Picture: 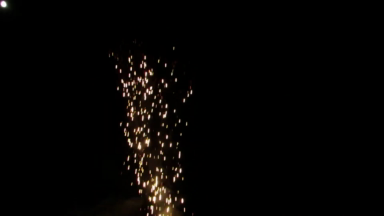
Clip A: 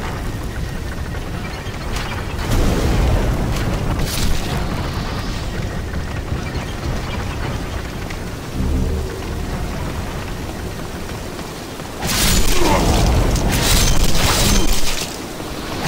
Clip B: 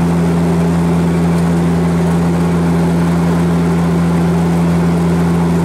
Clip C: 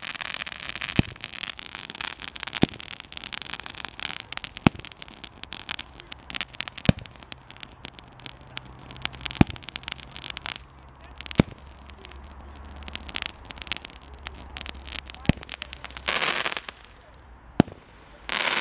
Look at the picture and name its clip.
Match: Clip C